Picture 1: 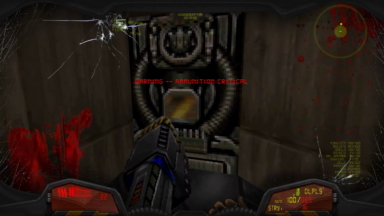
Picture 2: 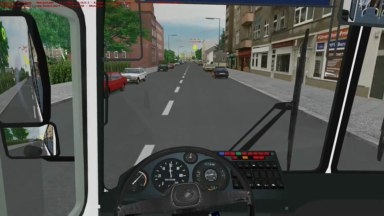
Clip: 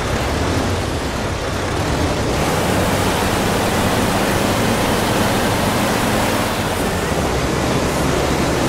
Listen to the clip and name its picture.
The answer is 2